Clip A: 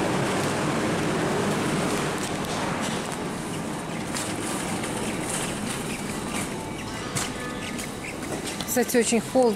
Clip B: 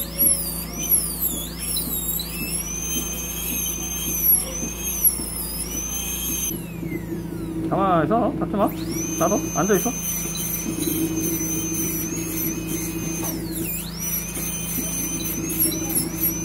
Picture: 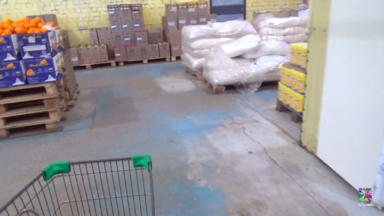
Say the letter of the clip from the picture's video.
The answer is A